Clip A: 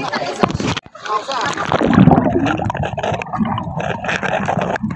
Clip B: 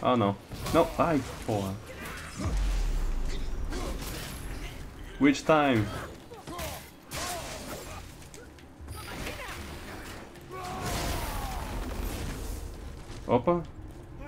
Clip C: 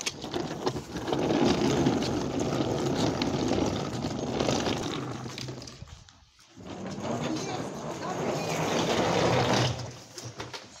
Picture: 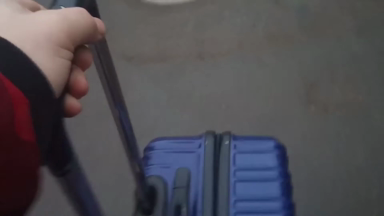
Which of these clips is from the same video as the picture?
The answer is C